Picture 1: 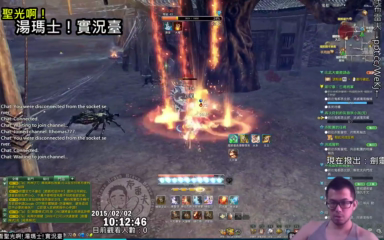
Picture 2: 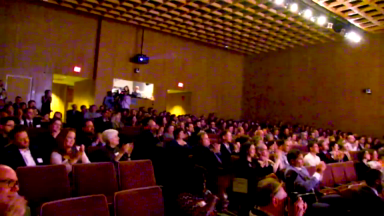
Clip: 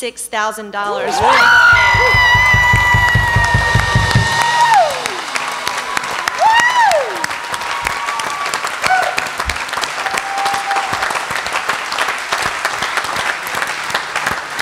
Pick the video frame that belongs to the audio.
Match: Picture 2